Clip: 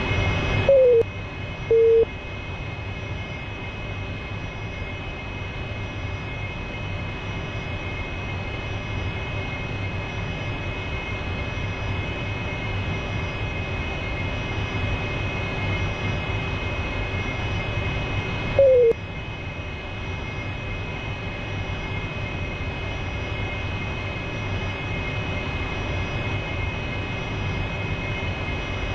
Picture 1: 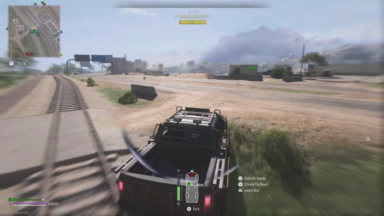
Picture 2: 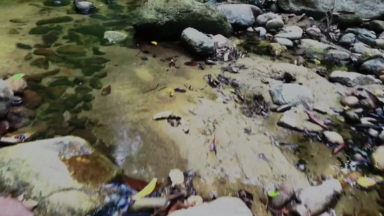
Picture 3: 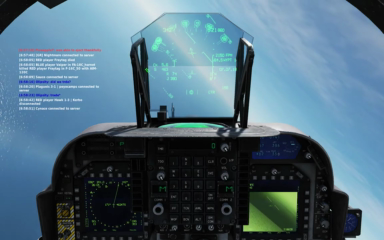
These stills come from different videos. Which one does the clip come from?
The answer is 3